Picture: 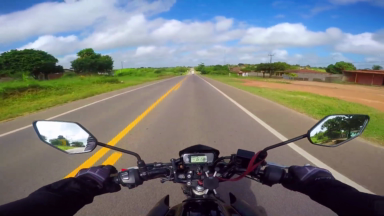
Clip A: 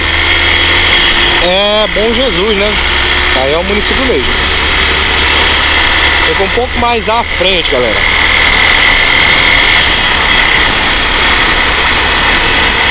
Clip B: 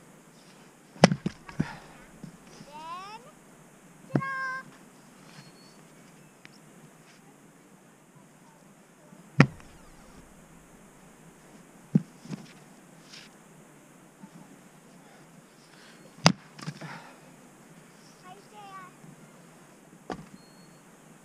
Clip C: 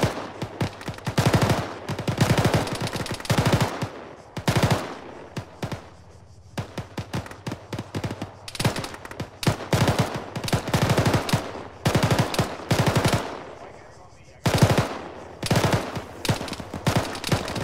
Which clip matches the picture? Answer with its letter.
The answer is A